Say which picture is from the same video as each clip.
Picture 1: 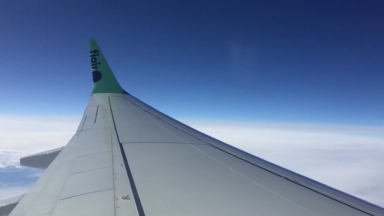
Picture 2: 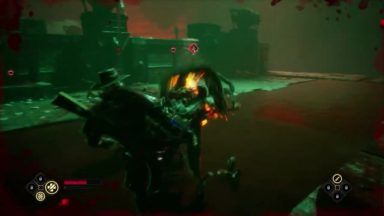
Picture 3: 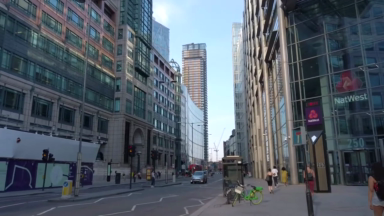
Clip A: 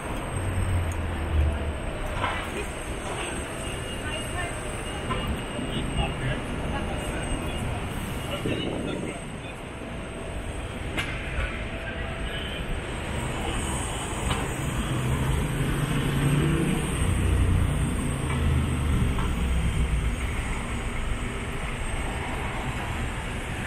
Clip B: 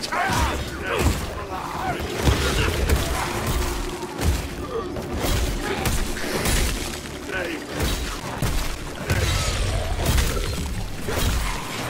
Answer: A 3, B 2